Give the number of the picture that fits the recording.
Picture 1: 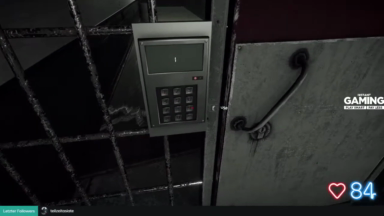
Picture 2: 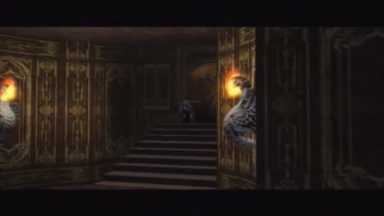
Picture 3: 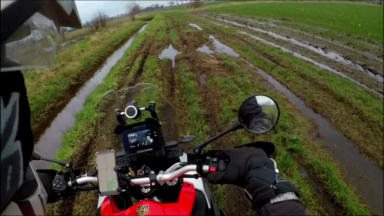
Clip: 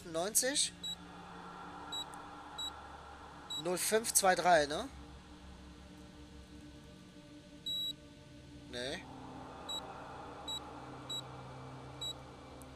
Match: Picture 1